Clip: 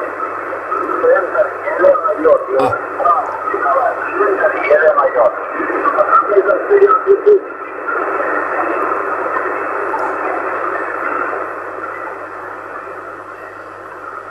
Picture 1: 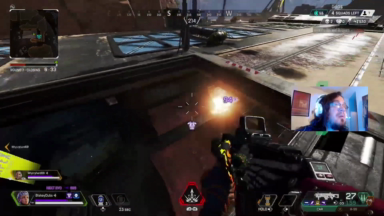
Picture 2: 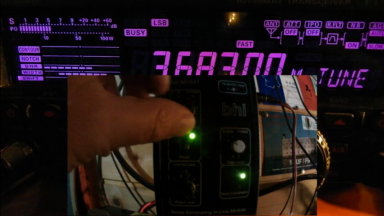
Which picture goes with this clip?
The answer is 2